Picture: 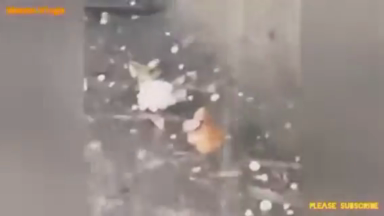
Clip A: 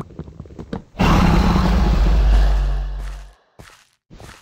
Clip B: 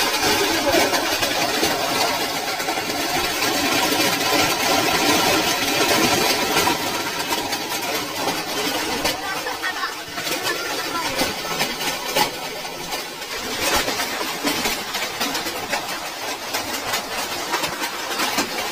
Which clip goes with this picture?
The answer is B